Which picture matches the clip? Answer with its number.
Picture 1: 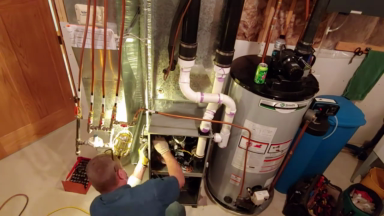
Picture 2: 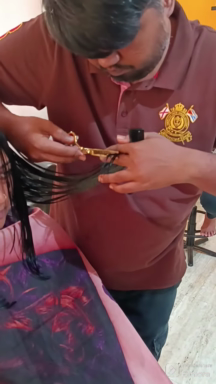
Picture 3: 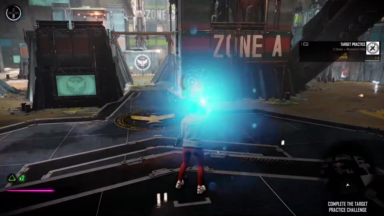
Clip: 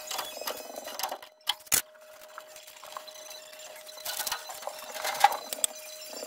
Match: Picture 1